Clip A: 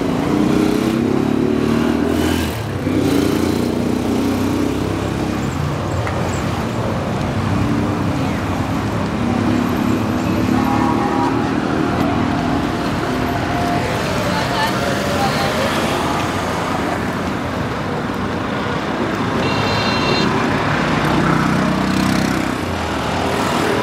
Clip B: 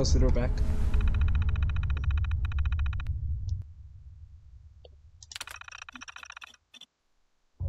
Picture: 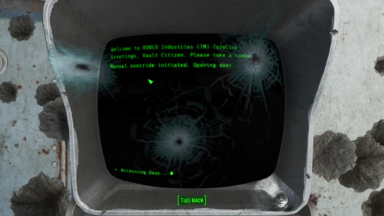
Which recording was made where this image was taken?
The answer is B